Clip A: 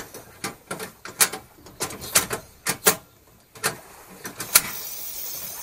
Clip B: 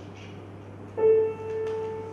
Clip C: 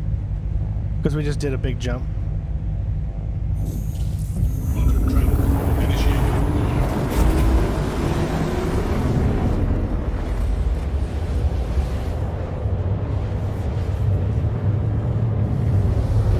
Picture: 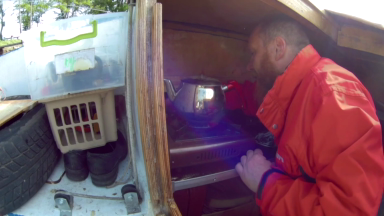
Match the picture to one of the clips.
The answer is A